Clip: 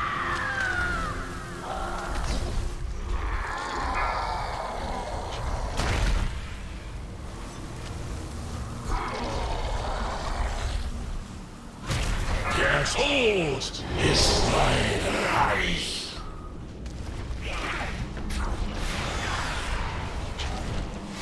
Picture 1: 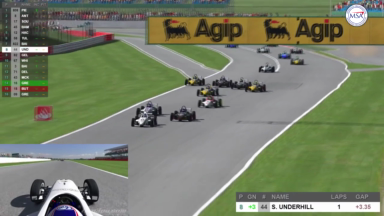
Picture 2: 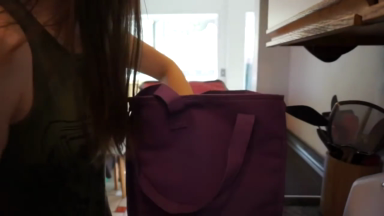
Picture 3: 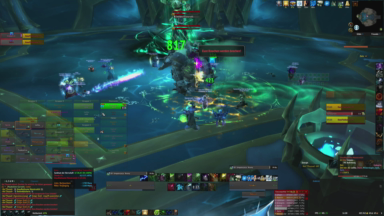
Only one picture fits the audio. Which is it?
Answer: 3